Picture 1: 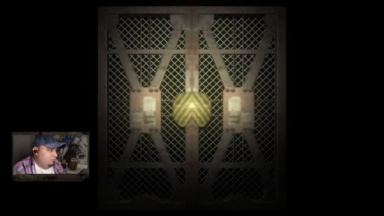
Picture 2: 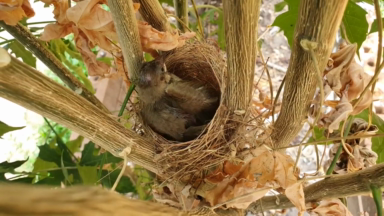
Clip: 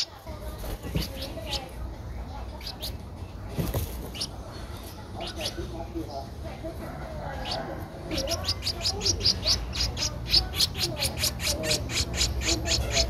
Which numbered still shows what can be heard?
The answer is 2